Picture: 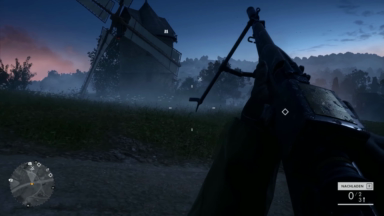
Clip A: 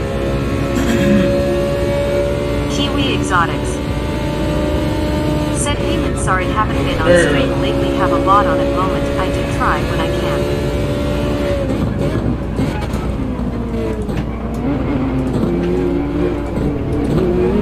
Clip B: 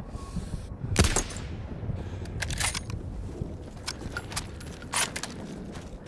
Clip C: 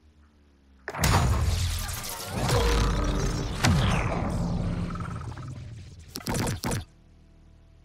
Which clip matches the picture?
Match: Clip B